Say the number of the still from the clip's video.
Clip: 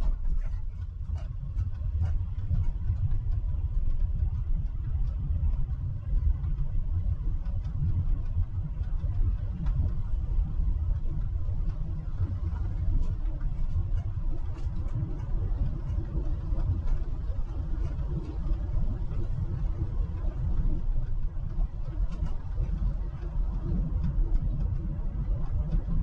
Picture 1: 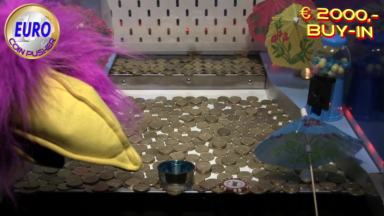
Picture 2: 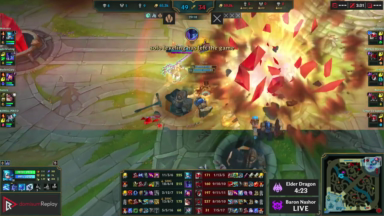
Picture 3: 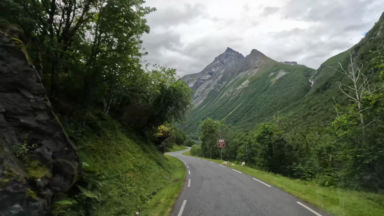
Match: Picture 3